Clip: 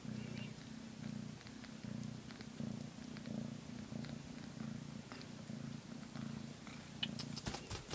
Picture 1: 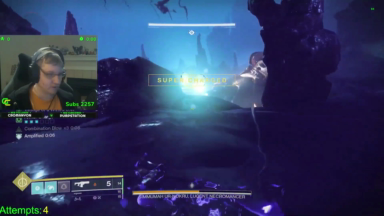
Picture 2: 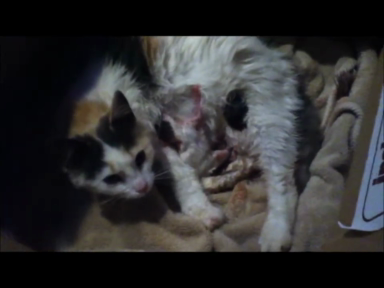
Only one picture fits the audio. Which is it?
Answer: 2